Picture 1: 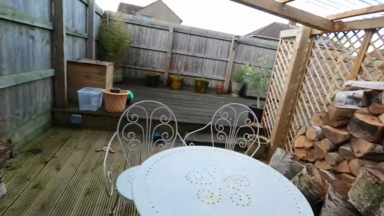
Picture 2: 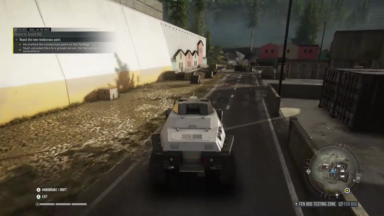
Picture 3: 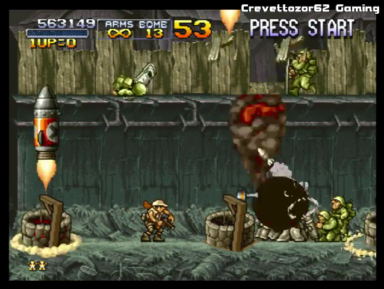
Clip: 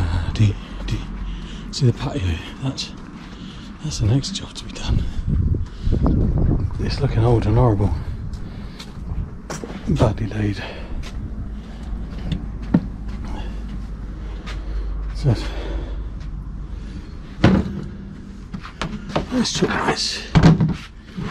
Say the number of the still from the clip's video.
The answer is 1